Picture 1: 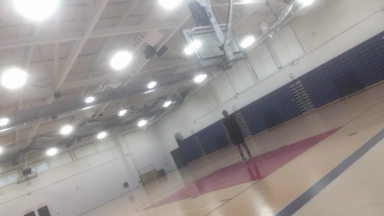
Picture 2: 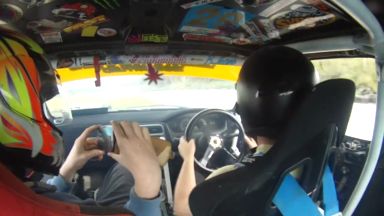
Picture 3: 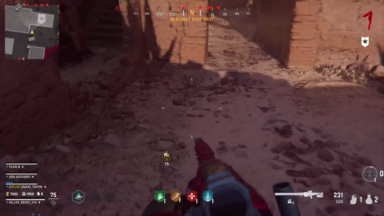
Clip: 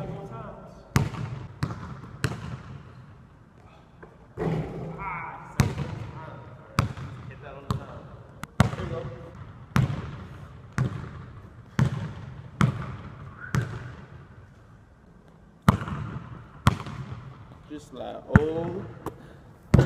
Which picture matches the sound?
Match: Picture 1